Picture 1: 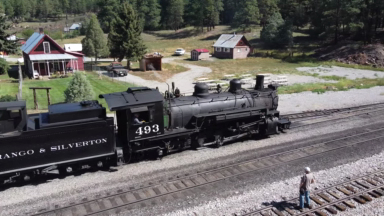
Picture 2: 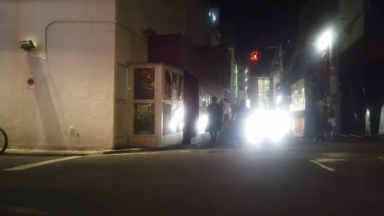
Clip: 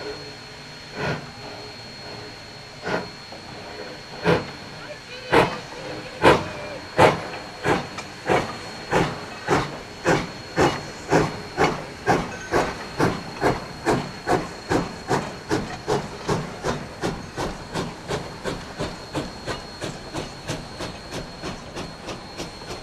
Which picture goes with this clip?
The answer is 1